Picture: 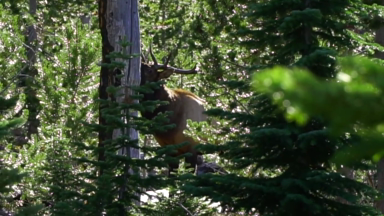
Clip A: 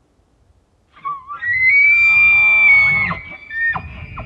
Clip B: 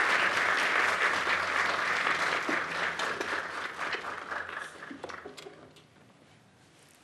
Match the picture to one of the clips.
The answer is A